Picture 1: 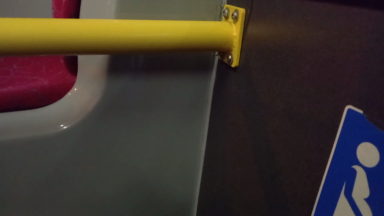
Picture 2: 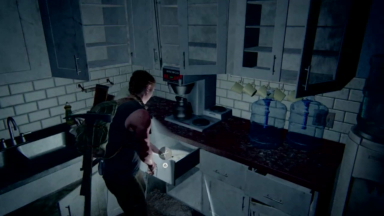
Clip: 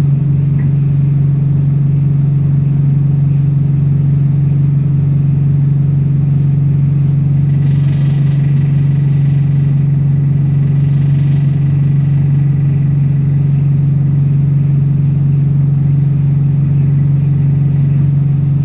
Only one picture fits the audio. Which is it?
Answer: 1